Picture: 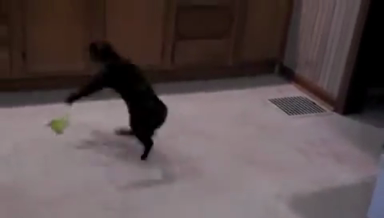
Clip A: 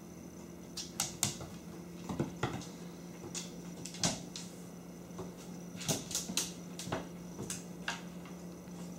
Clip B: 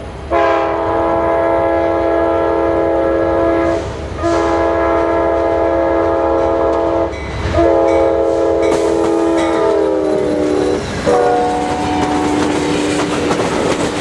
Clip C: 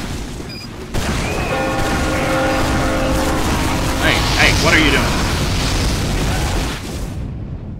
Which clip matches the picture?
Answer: A